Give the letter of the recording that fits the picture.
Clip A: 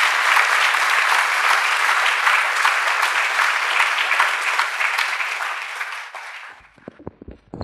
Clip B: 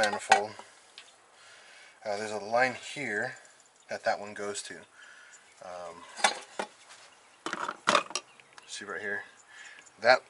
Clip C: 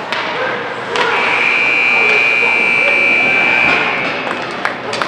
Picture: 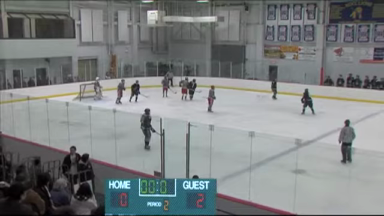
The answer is C